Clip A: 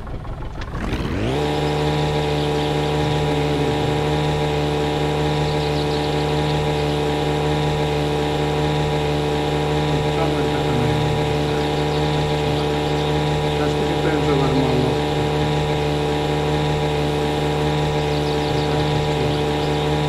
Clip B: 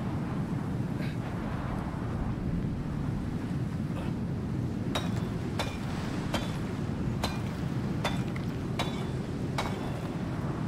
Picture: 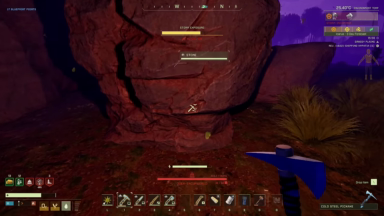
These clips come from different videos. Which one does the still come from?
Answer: B